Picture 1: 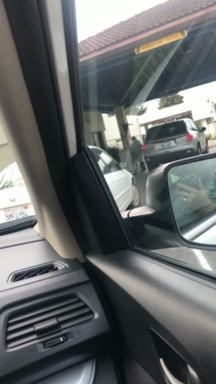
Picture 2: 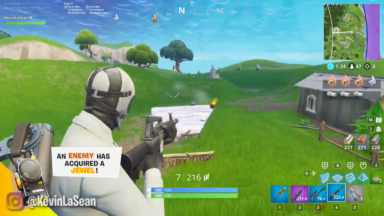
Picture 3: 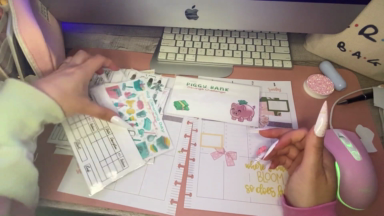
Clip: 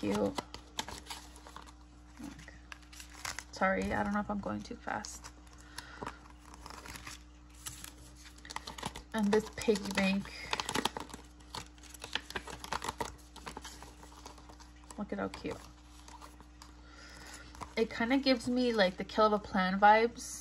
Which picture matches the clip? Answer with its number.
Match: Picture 3